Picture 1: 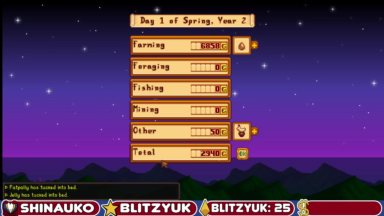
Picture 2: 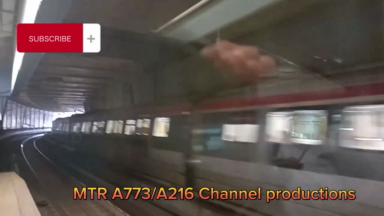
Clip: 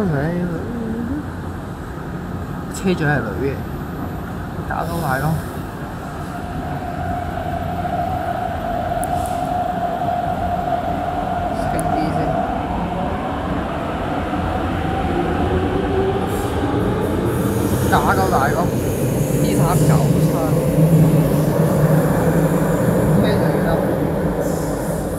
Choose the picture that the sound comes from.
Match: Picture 2